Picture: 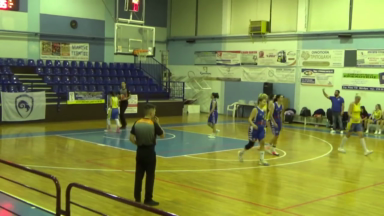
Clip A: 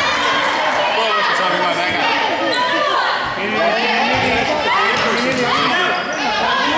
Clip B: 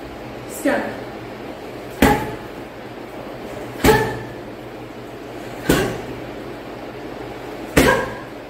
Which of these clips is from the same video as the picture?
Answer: A